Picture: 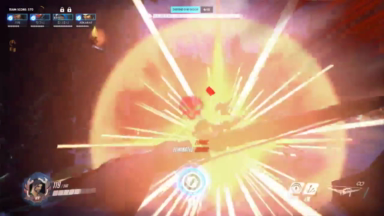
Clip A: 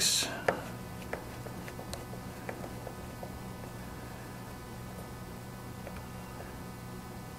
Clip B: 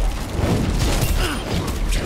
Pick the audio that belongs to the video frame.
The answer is B